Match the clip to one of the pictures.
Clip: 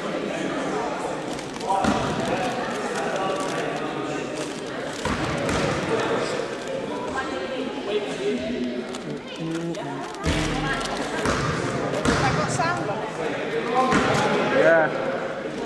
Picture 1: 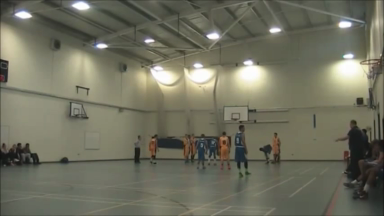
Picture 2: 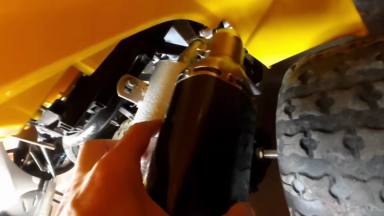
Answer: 1